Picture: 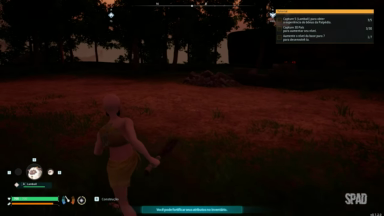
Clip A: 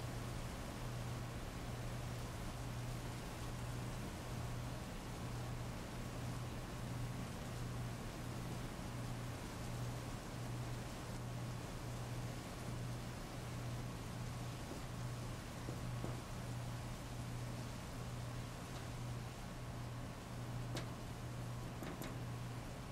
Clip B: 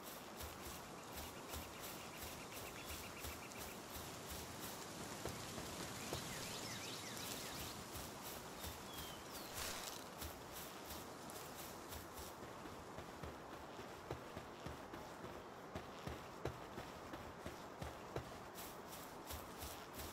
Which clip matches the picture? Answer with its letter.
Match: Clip B